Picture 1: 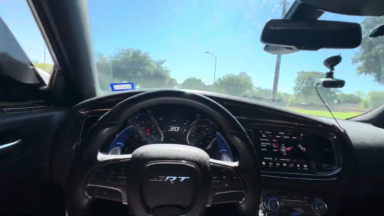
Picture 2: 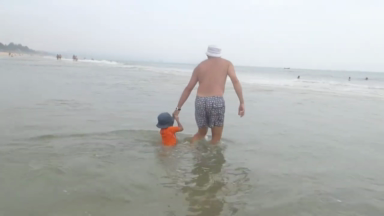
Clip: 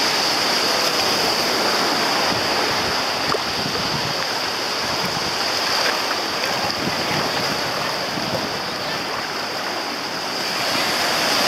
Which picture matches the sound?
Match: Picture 2